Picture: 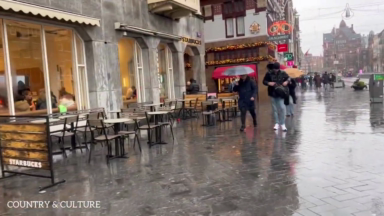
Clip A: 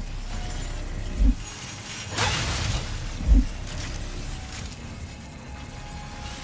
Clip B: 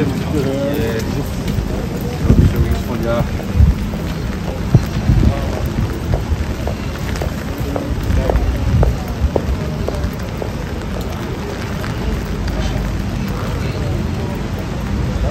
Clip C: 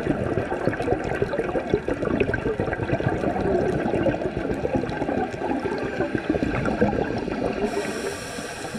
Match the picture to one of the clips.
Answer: B